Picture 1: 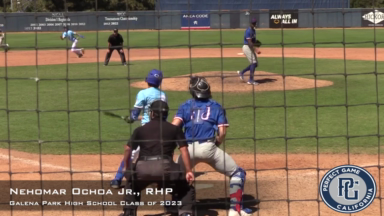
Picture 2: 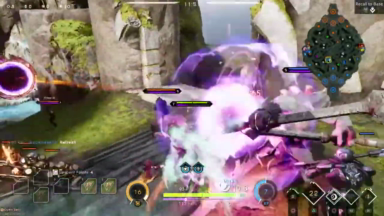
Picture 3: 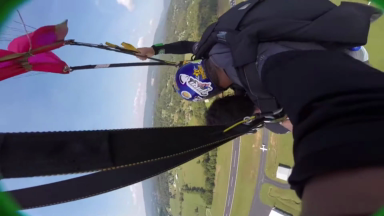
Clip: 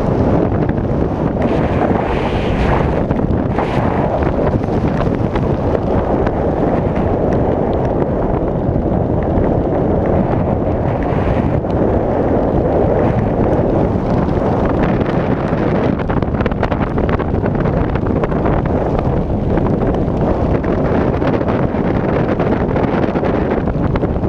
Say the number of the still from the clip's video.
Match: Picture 3